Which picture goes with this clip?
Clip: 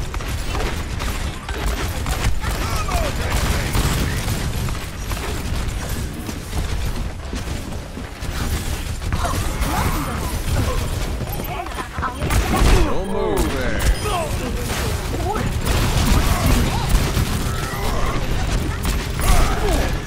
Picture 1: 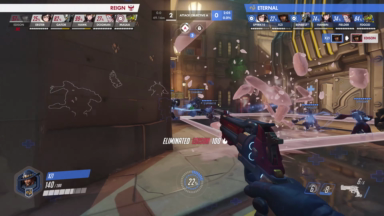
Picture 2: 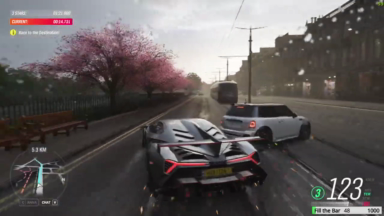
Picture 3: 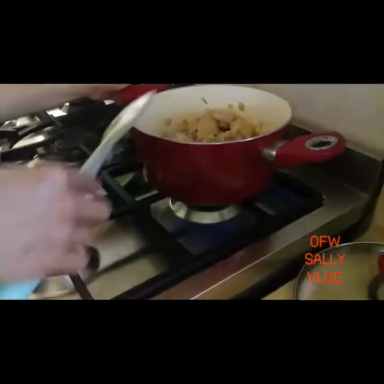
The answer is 1